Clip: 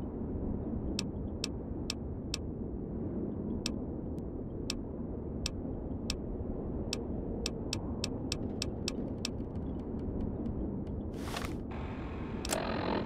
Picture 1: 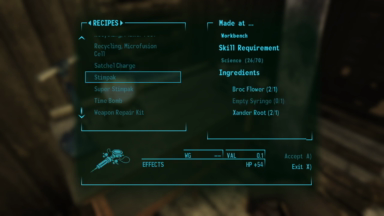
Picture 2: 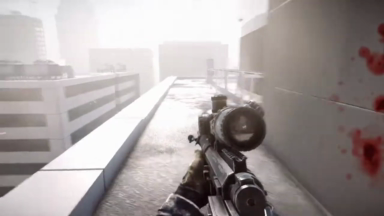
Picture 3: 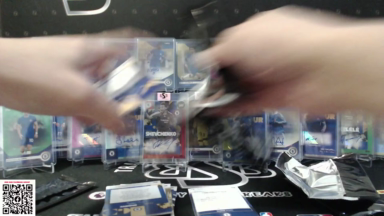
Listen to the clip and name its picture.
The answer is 1